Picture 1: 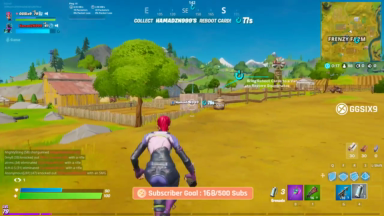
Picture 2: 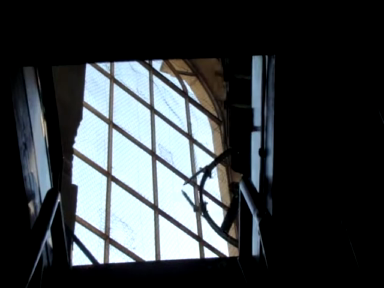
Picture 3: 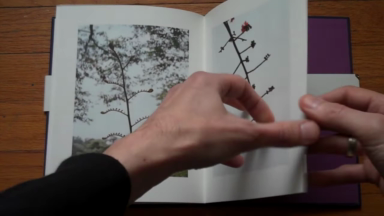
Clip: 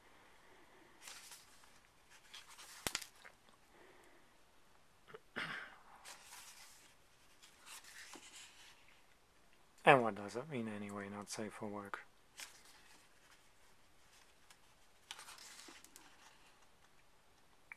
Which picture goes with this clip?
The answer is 3